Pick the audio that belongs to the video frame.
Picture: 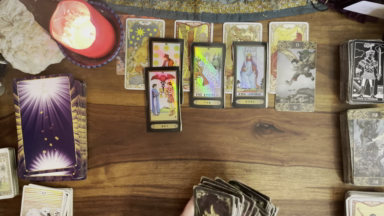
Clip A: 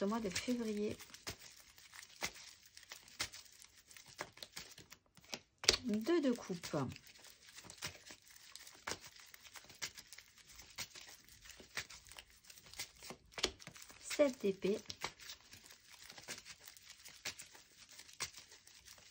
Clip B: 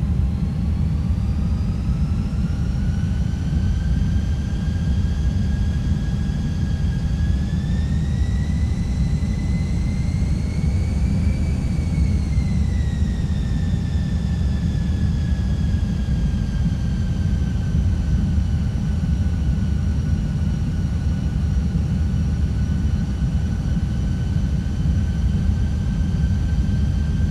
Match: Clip A